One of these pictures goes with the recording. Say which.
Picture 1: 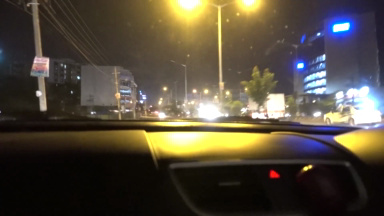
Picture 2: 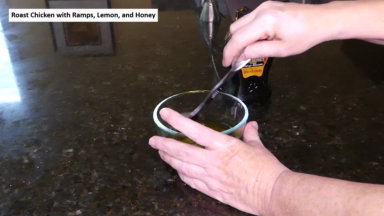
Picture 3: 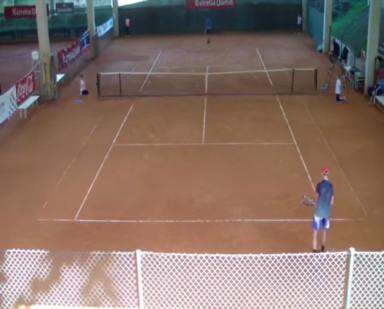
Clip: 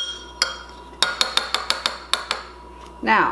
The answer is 2